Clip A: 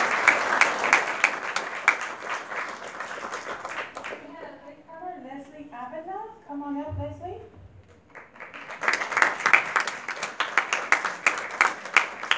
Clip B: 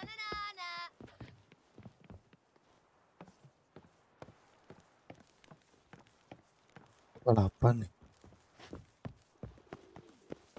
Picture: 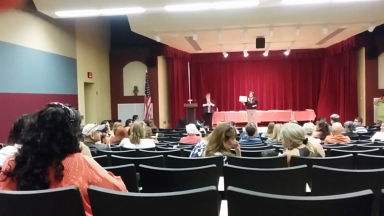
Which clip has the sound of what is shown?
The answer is A